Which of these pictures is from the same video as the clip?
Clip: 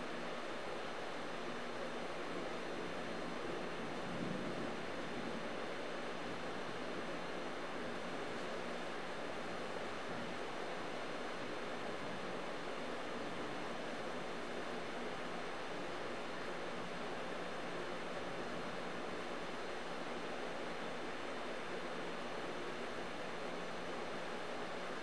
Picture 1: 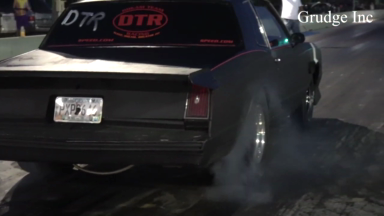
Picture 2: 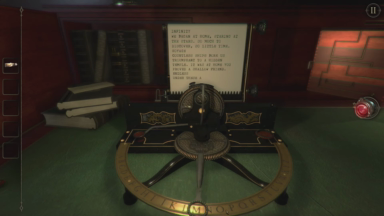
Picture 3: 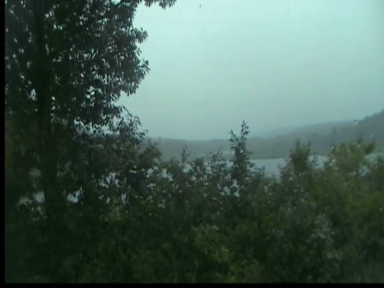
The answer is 3